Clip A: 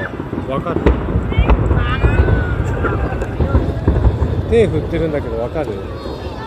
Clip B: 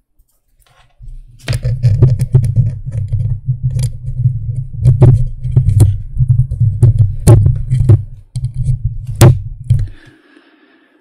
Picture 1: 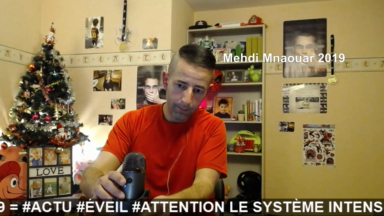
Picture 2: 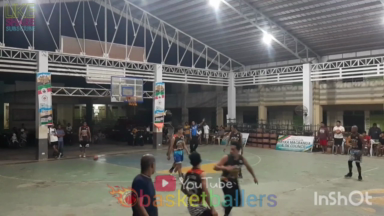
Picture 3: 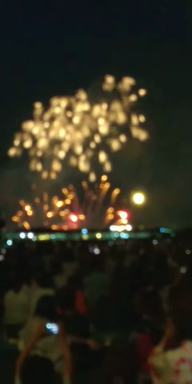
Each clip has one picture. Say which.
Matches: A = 3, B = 1